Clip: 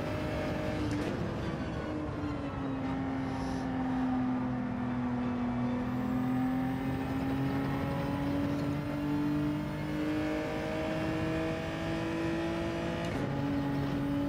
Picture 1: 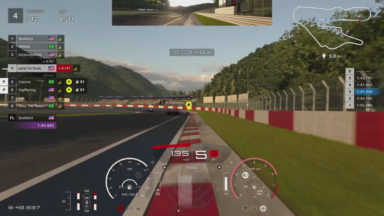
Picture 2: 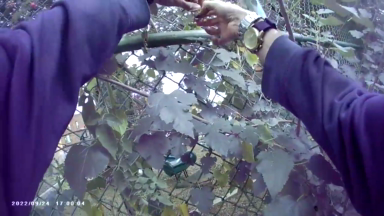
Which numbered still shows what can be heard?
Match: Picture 1